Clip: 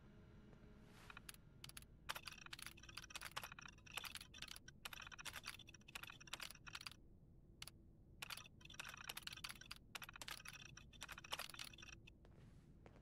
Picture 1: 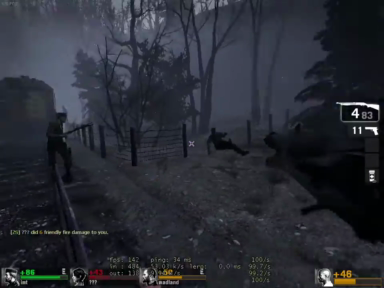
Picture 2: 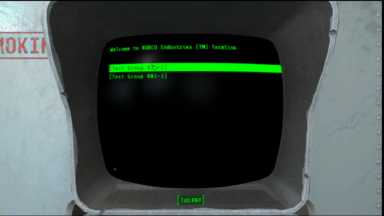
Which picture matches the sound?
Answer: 2